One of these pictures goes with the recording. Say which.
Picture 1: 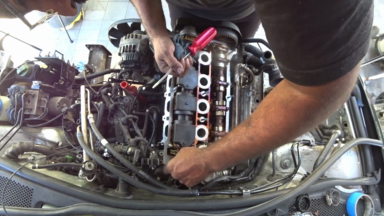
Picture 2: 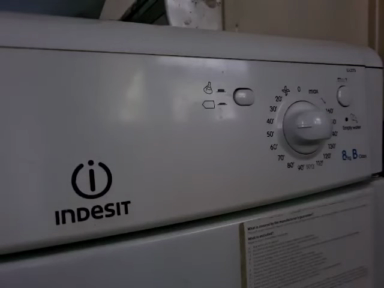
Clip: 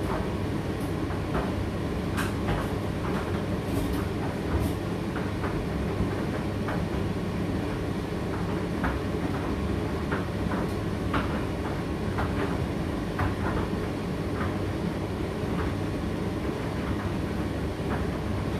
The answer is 2